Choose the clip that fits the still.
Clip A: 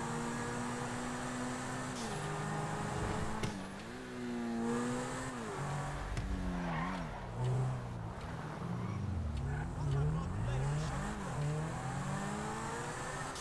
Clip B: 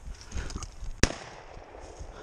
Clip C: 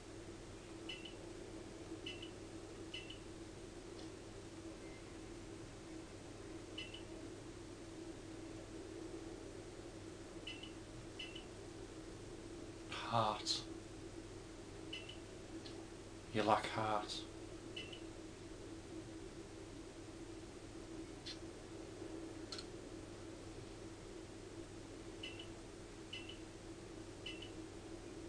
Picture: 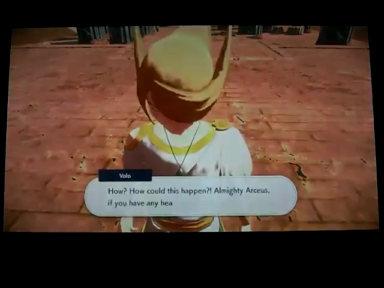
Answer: C